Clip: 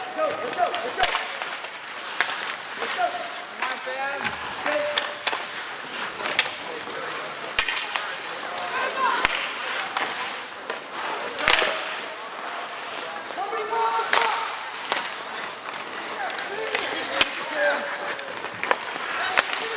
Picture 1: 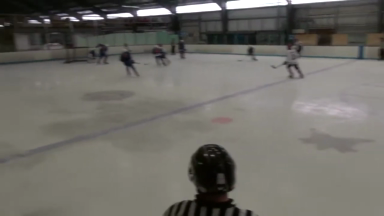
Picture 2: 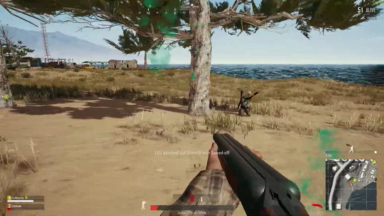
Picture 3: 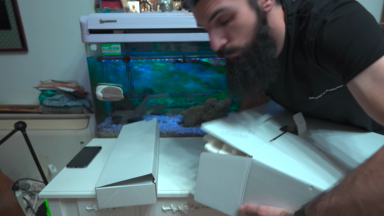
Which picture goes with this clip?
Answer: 1